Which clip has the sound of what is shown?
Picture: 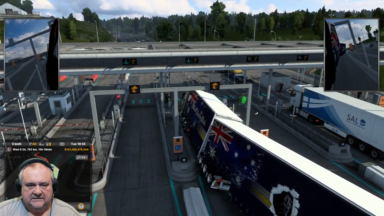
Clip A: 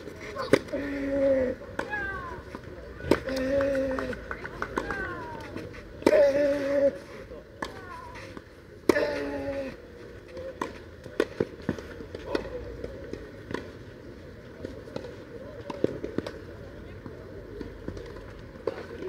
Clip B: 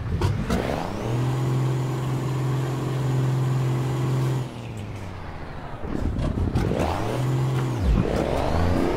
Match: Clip B